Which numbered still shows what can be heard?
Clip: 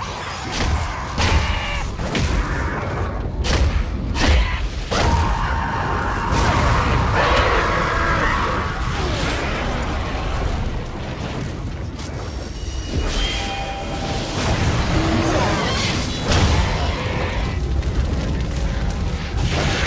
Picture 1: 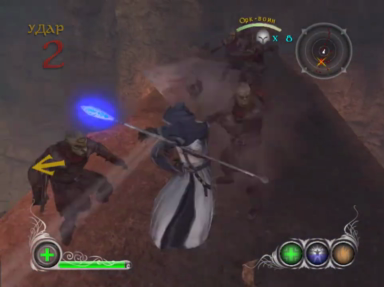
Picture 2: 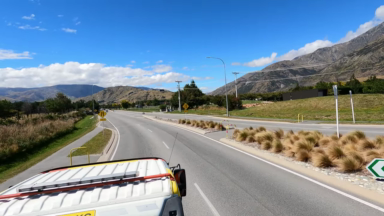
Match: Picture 1